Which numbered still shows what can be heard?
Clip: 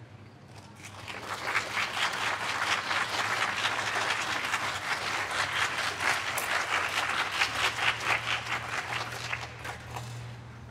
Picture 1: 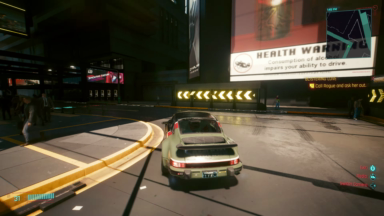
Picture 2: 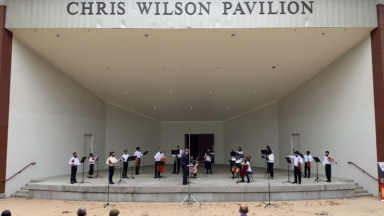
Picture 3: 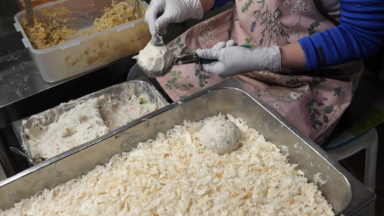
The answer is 2